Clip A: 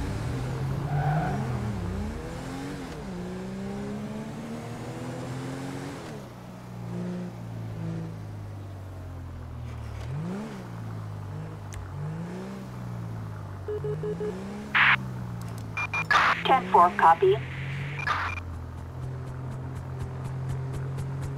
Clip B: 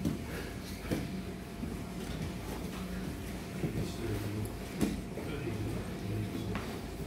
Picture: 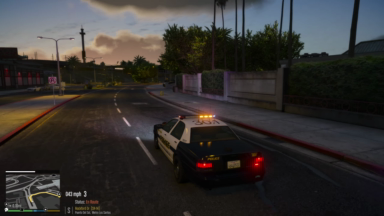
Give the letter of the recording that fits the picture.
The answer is A